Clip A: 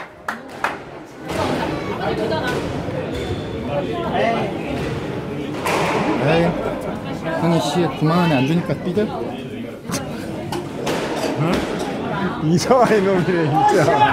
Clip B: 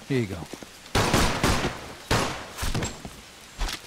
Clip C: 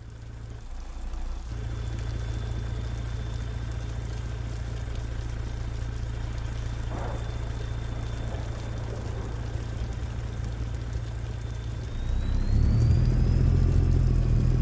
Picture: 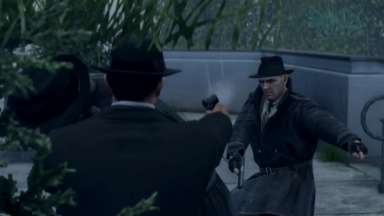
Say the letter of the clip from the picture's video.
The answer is B